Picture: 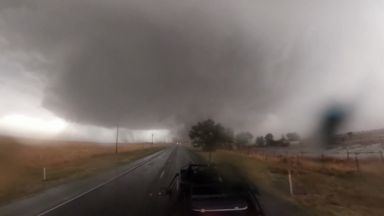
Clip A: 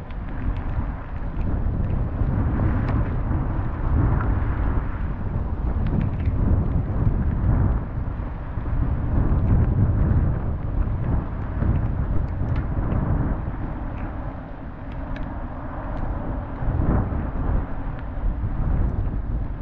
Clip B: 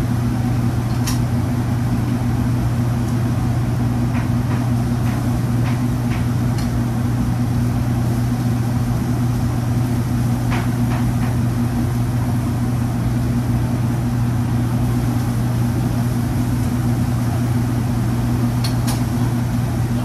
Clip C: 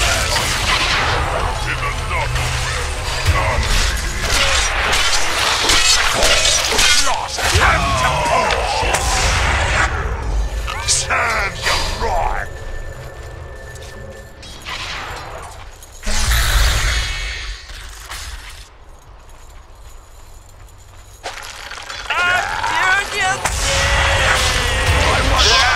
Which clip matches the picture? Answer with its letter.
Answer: A